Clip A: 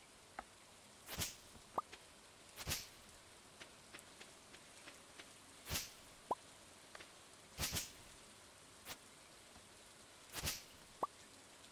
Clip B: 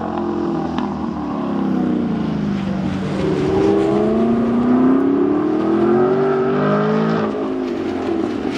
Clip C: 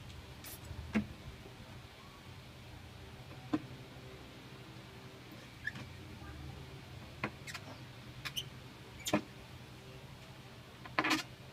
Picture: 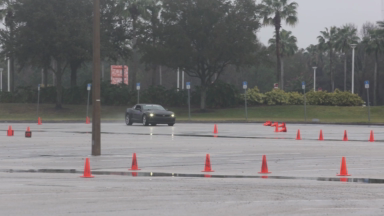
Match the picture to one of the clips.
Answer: B